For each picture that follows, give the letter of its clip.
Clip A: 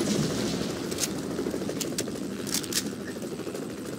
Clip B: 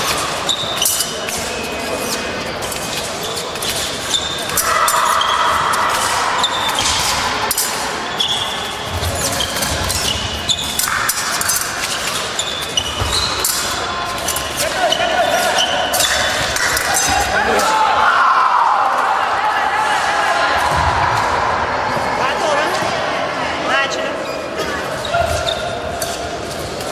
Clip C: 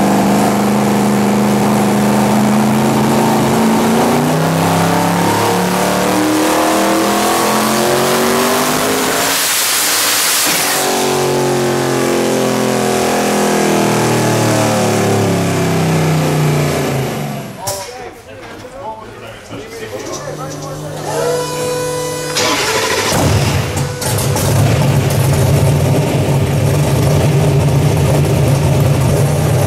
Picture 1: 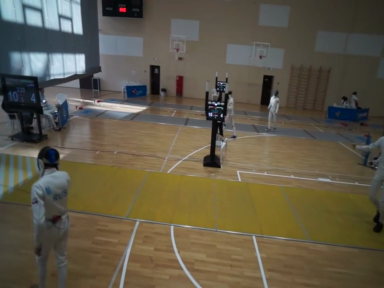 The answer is B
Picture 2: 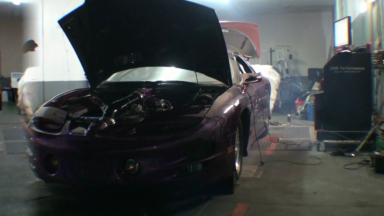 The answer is C